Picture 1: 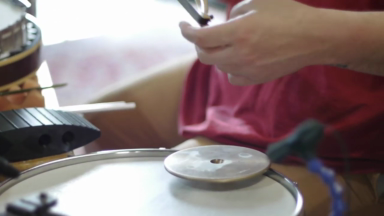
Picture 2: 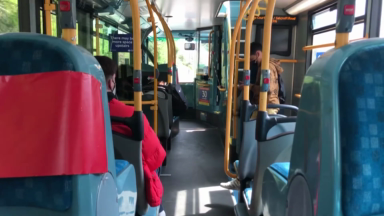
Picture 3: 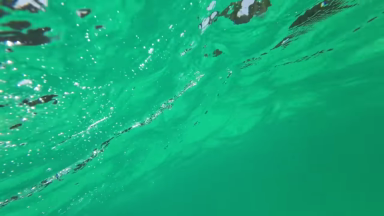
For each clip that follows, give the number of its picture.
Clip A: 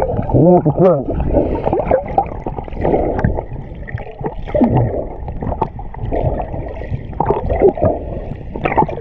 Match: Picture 3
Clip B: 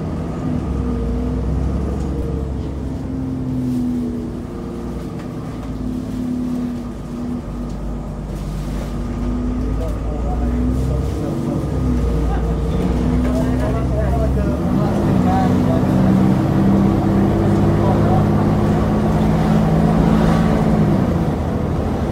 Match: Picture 2